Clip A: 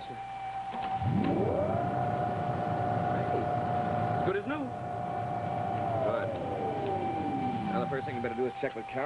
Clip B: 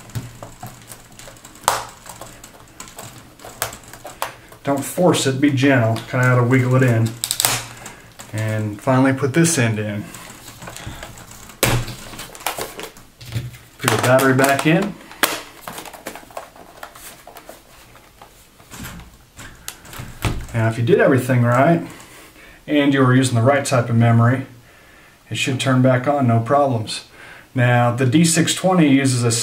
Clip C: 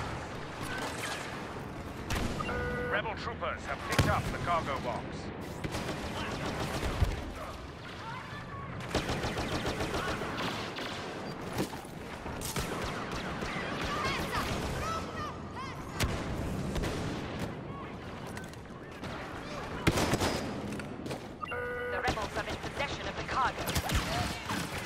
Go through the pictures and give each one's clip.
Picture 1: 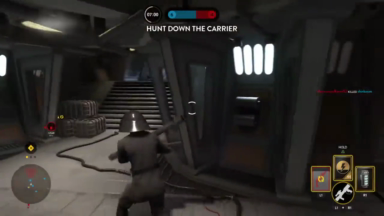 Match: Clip C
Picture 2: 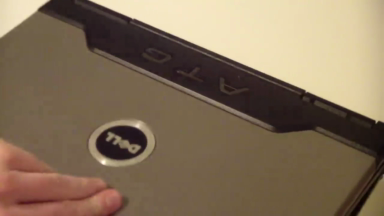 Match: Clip B